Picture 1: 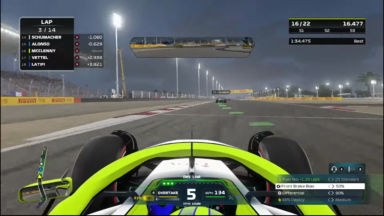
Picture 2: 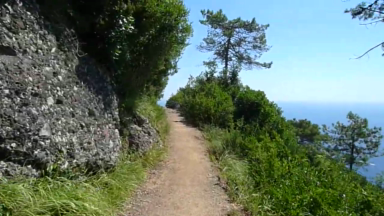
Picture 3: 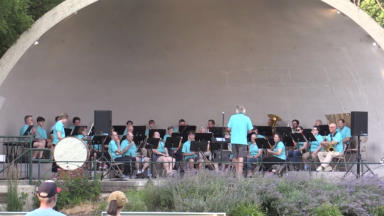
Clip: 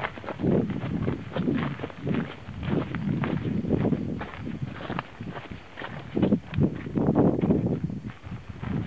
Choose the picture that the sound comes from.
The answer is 2